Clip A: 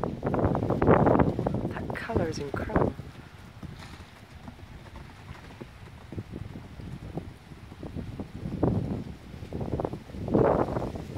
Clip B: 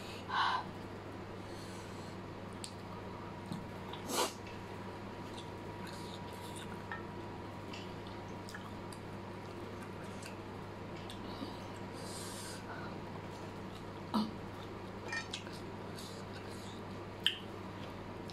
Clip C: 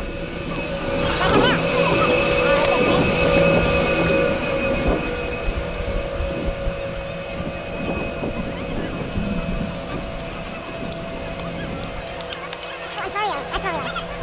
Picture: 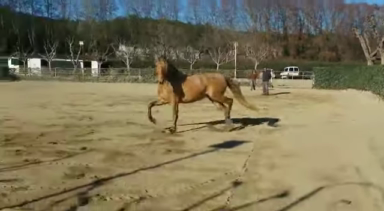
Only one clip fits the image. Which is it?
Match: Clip A